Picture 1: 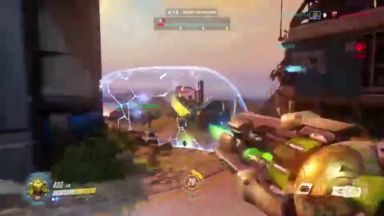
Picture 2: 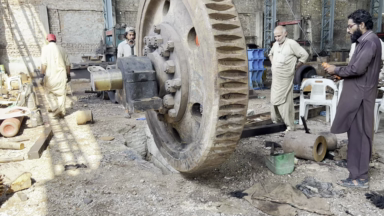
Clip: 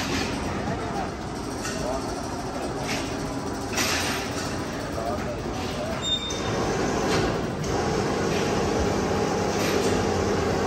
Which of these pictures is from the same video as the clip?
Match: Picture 2